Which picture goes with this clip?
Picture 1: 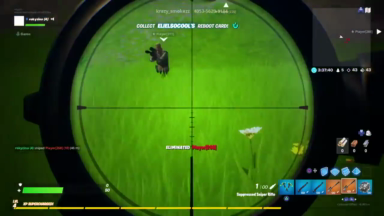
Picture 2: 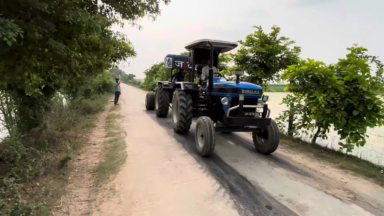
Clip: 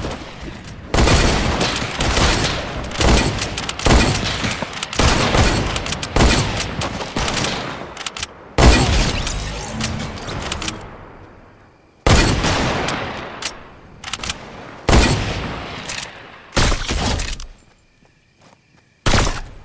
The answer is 1